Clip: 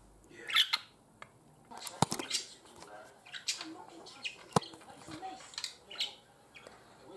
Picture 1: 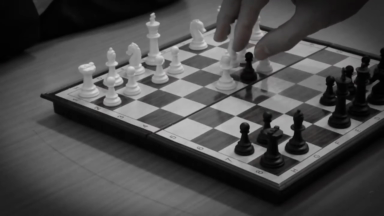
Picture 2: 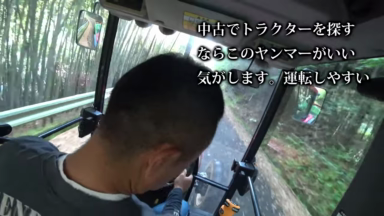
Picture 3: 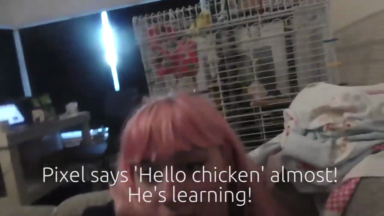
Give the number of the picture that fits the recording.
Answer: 3